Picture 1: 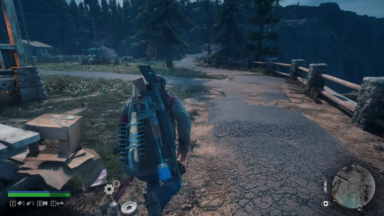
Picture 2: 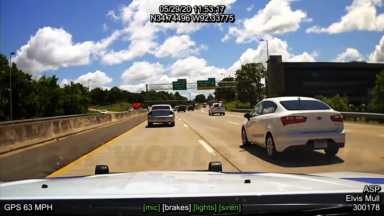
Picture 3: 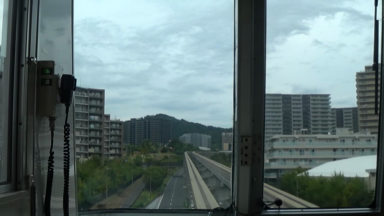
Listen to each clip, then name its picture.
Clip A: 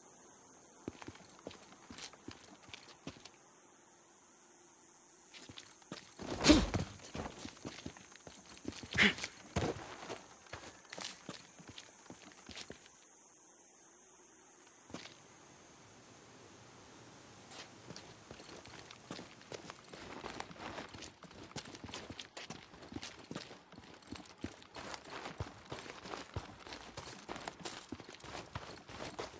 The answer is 1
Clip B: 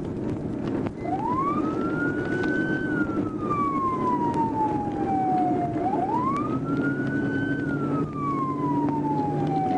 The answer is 2